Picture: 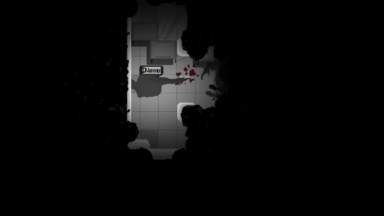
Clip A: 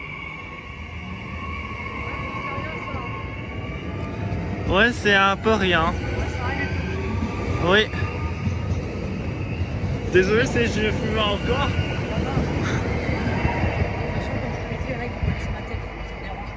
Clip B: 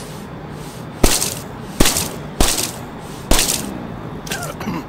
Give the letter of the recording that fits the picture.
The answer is B